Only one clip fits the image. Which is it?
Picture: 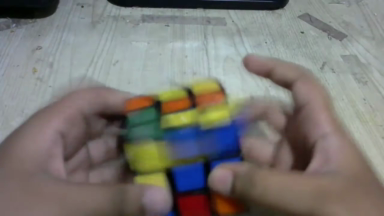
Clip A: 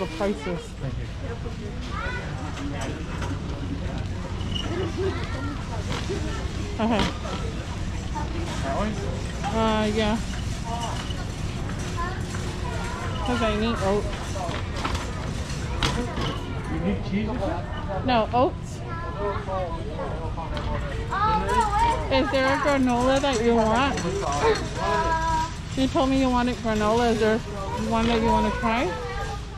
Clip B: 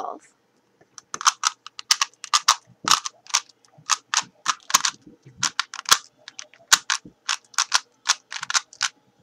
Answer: B